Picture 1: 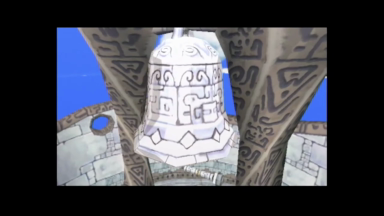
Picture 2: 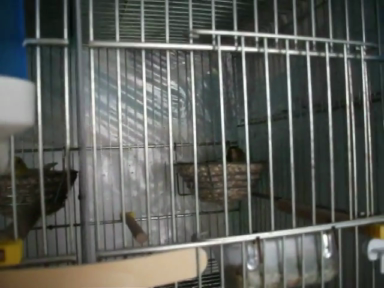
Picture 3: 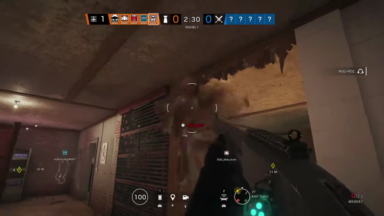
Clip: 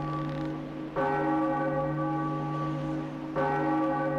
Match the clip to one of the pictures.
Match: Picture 1